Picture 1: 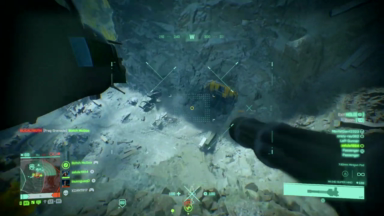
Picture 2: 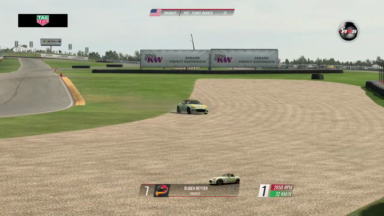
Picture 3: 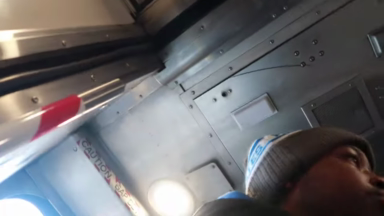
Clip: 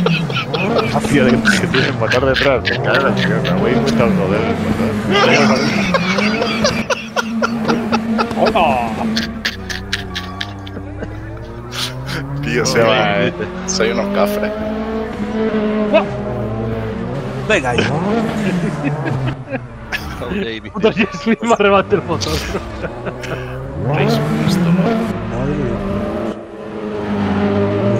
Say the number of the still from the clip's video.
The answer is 2